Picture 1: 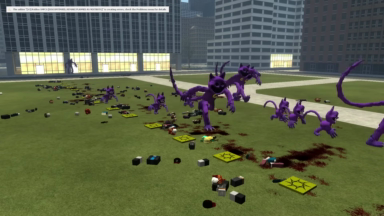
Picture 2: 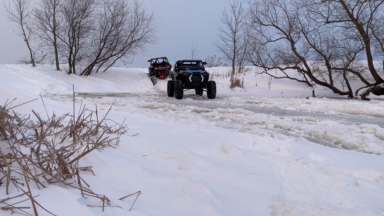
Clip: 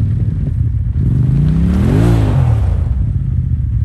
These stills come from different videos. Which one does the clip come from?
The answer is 2